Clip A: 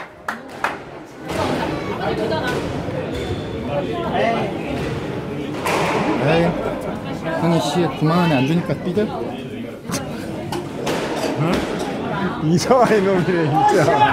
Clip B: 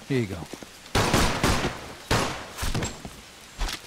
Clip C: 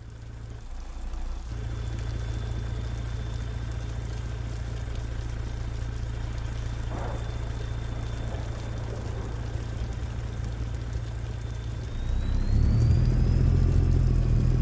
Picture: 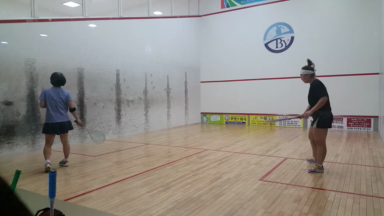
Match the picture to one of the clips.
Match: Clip A